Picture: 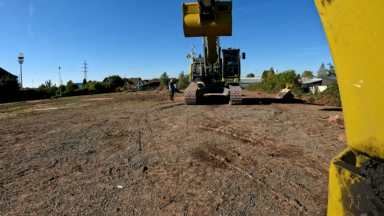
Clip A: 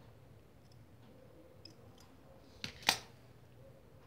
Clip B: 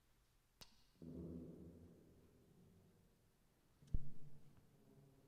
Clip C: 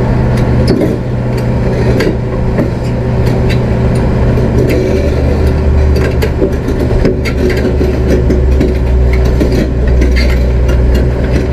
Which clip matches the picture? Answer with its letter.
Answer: C